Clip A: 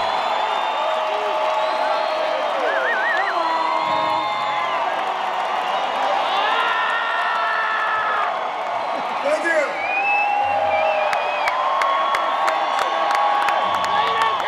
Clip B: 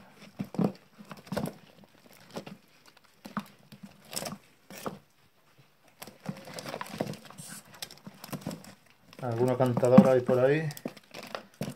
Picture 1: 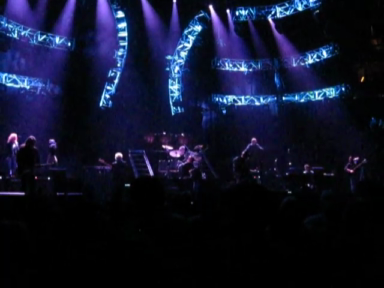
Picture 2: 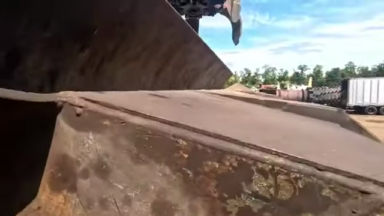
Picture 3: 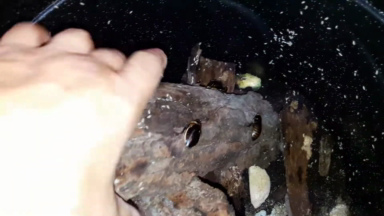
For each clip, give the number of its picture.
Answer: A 1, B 3